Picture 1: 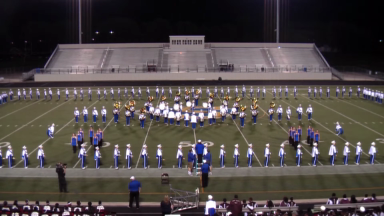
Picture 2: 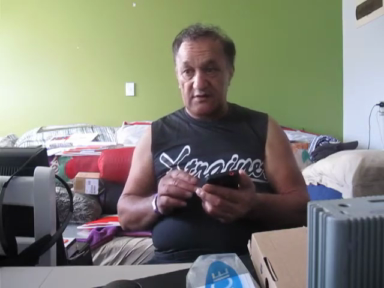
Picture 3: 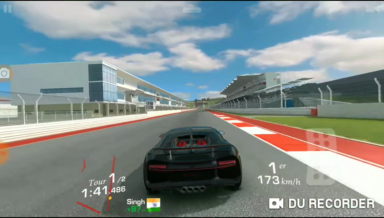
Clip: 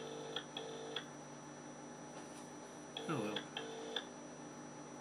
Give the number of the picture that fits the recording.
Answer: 2